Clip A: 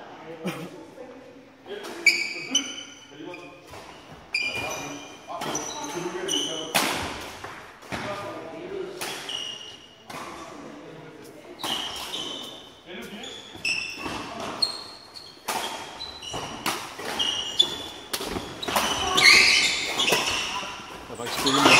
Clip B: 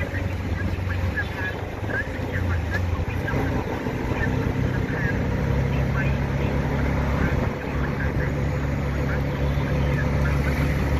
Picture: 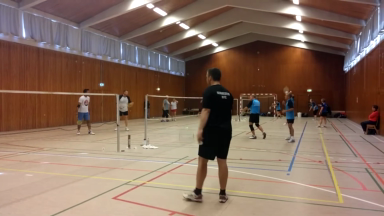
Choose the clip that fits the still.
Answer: A